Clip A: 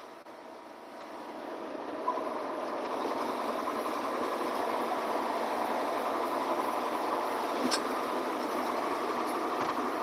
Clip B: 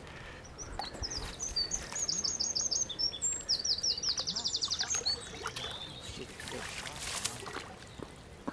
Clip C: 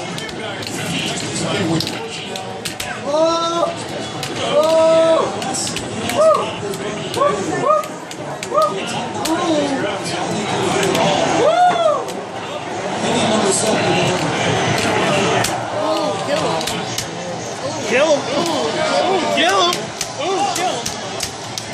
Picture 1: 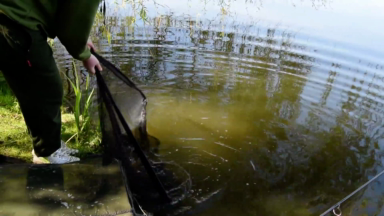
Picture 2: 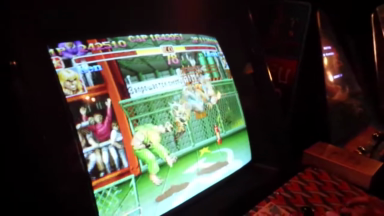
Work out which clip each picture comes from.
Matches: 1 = B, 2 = C